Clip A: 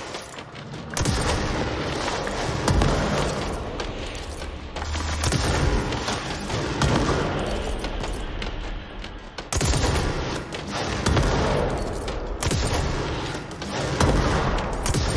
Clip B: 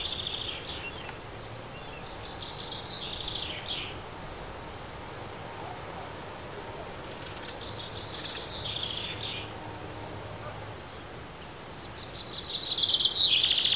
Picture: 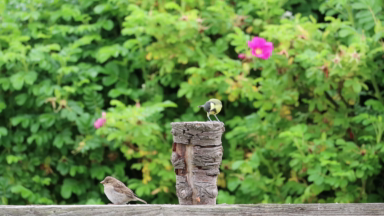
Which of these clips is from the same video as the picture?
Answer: B